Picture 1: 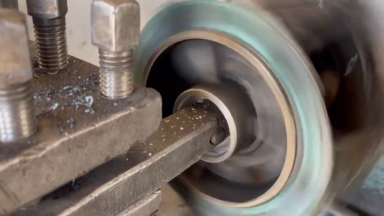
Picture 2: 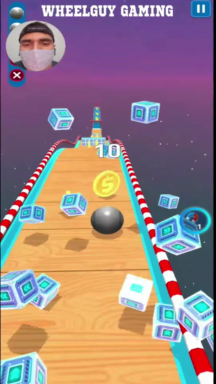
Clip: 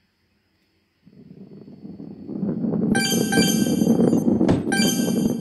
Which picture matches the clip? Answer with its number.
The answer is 2